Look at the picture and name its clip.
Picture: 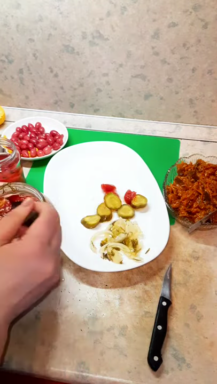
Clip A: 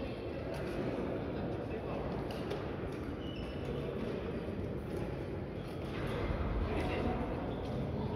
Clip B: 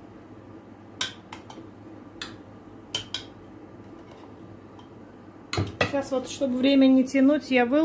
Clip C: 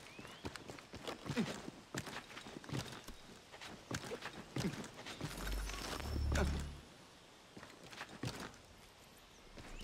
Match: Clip B